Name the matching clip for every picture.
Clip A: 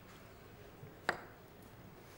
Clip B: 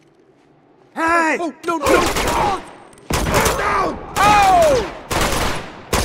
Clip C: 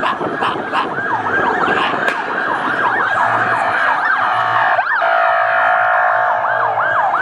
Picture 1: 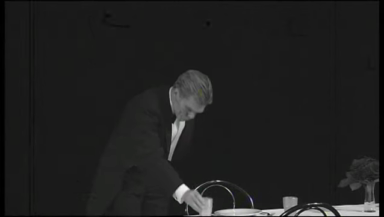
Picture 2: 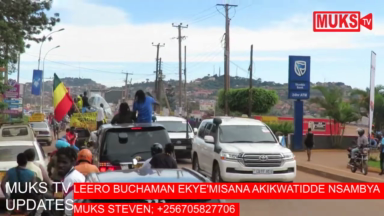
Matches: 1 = A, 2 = C